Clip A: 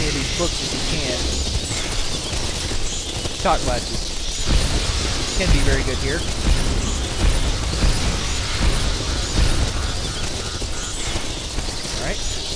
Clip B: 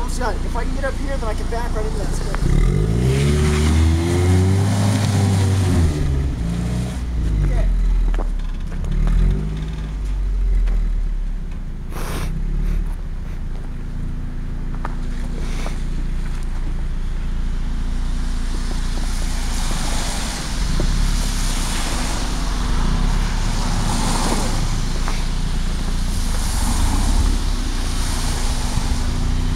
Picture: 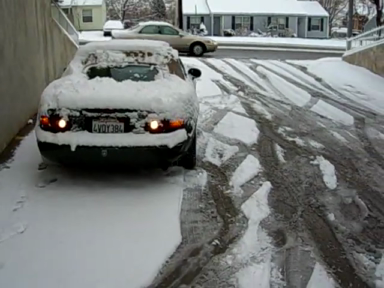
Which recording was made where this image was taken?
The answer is B